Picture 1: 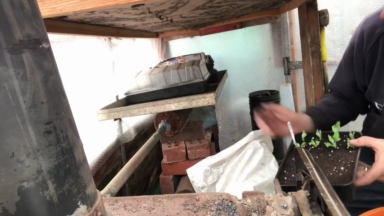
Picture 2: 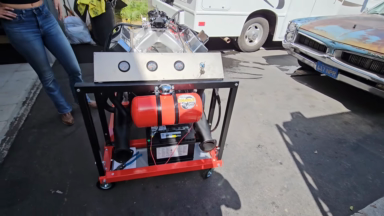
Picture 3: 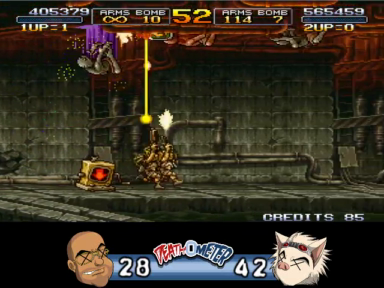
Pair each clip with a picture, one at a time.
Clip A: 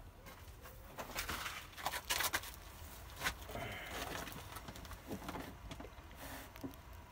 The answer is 1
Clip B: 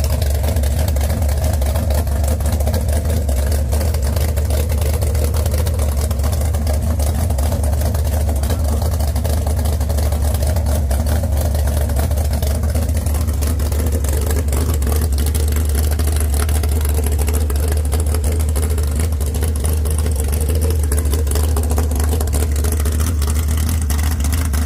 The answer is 2